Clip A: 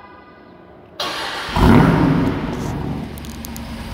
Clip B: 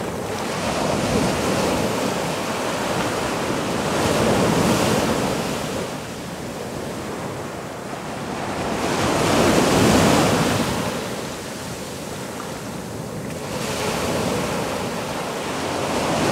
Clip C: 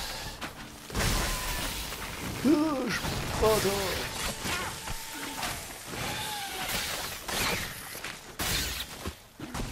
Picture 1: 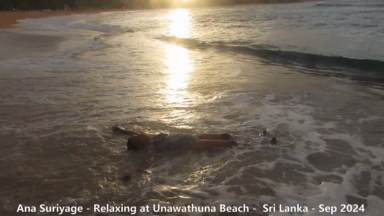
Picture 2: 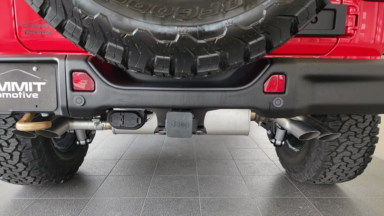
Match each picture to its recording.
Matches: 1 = B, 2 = A